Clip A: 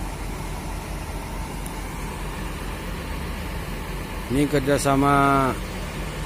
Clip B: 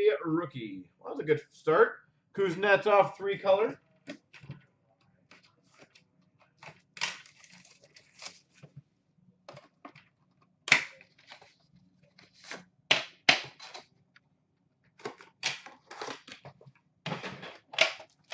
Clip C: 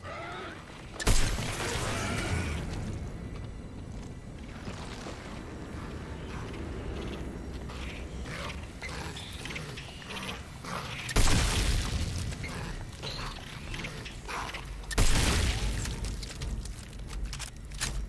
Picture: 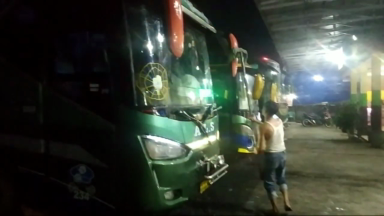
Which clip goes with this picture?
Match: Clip A